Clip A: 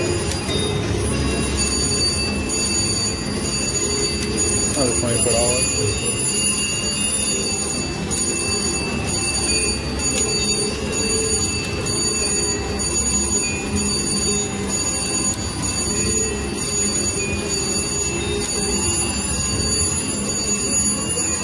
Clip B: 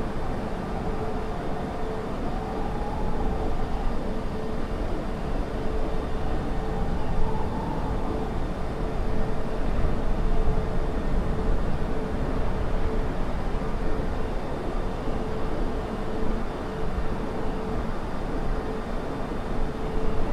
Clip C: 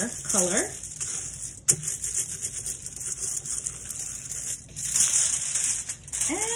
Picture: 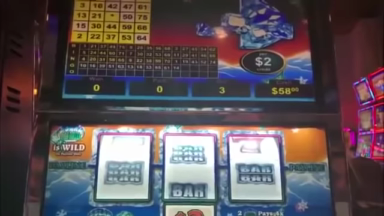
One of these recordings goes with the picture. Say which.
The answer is A